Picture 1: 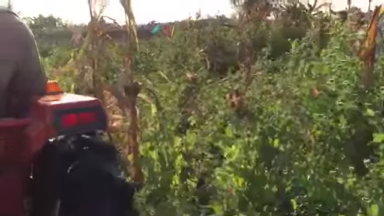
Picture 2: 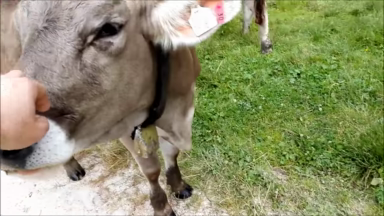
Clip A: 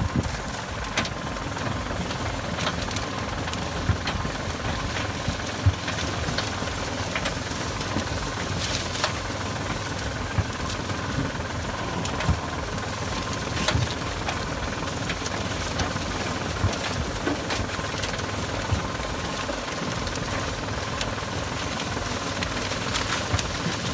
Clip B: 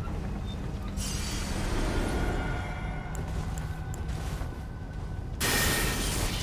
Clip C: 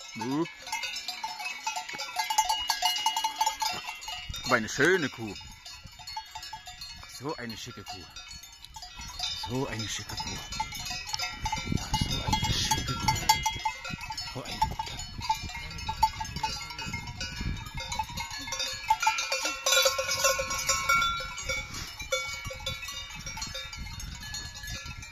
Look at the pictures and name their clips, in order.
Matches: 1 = A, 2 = C